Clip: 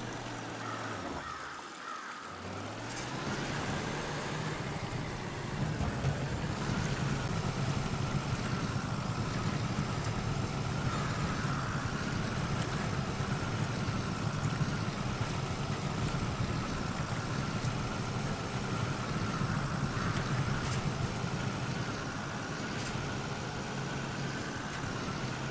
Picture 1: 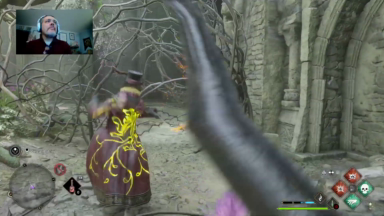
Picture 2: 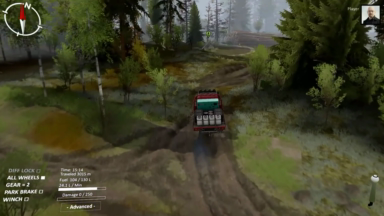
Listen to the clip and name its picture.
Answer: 2